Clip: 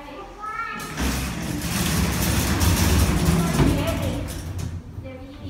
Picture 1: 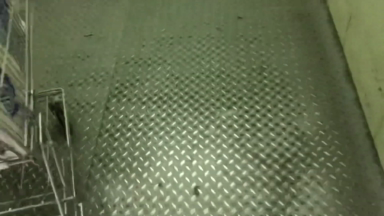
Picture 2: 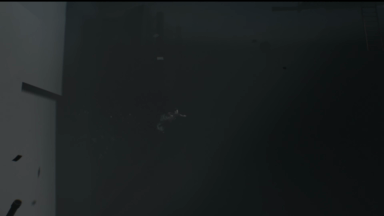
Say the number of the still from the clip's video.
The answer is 1